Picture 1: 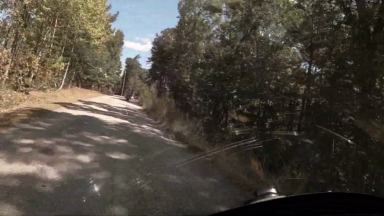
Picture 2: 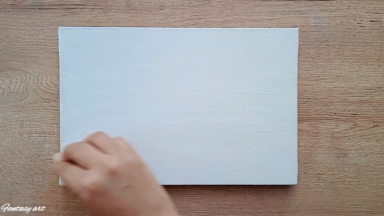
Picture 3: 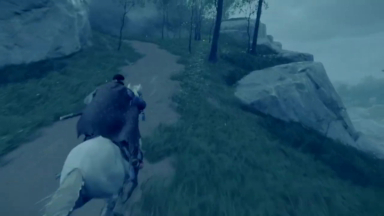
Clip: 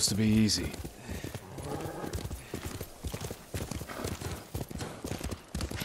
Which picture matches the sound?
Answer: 3